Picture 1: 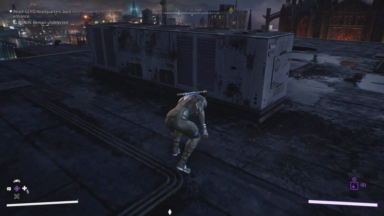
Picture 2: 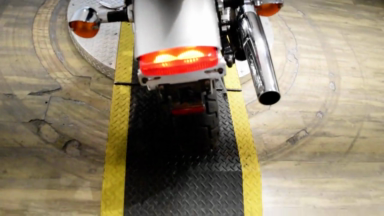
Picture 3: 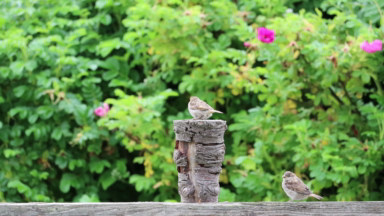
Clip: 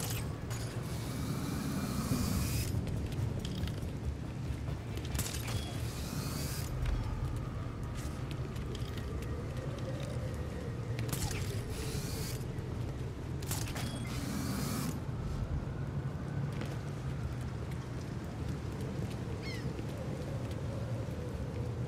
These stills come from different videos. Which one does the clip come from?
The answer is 1